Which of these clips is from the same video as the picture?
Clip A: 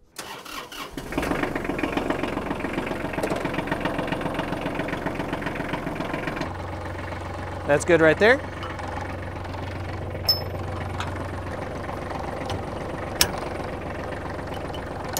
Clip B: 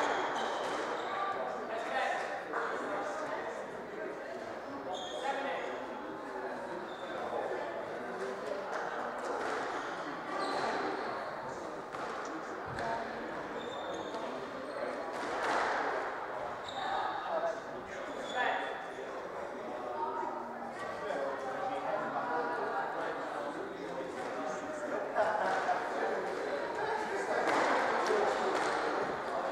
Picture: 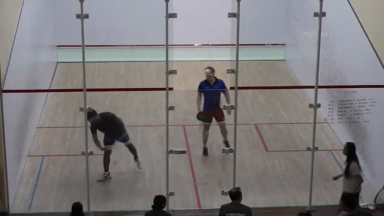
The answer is B